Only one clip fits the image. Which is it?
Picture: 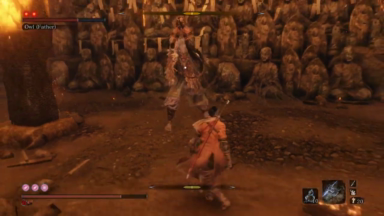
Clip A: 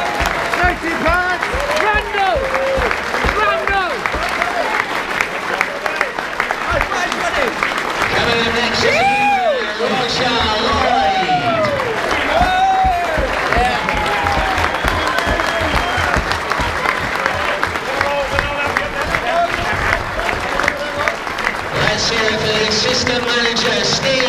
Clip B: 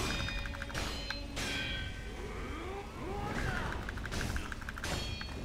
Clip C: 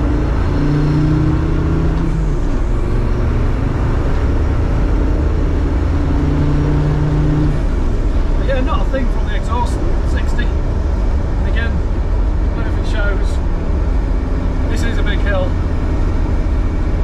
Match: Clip B